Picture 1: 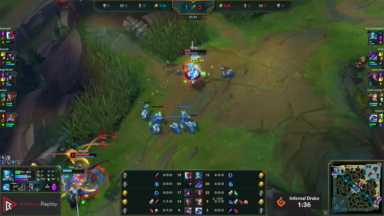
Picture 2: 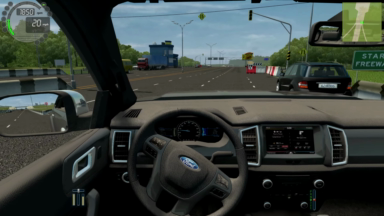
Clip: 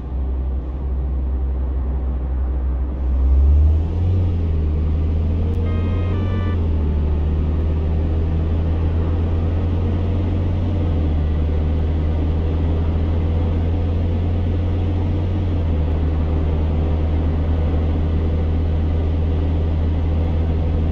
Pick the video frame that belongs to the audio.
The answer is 2